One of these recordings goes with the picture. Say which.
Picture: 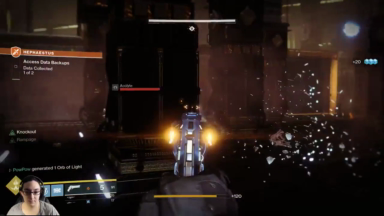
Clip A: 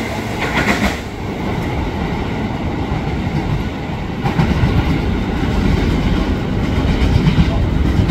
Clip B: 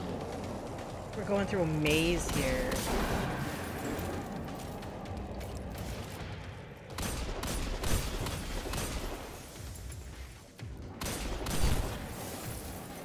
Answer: B